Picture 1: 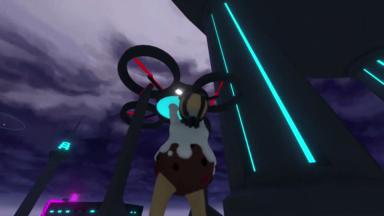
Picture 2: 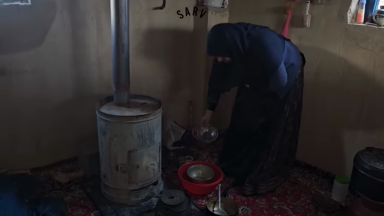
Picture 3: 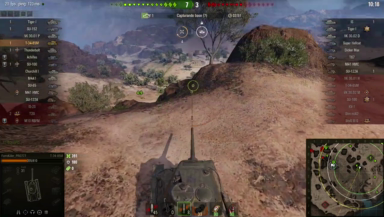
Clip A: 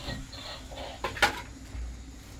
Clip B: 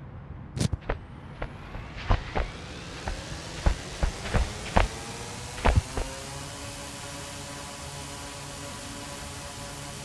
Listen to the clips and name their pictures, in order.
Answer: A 2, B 1